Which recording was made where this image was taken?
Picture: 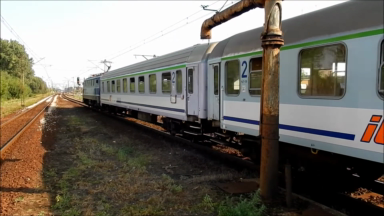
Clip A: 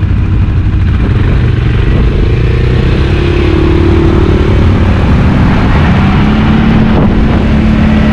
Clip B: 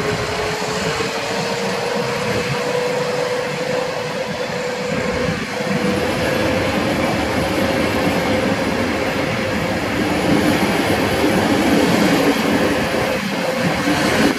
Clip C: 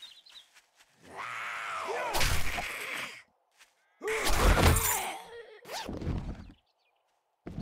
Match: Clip B